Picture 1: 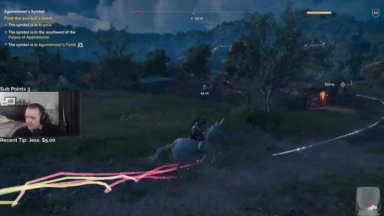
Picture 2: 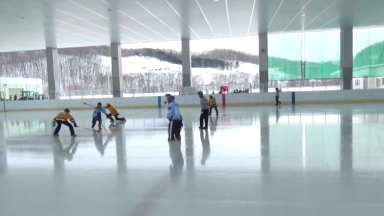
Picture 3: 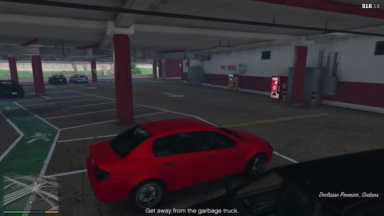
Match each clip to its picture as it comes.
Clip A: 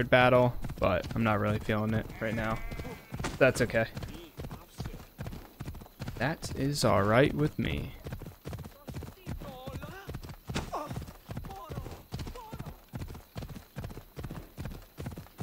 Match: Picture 1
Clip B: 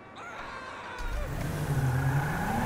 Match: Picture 3